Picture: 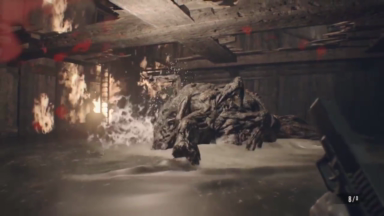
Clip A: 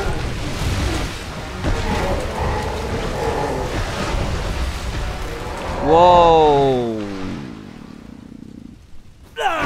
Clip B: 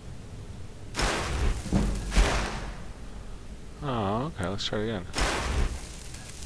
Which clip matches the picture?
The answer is A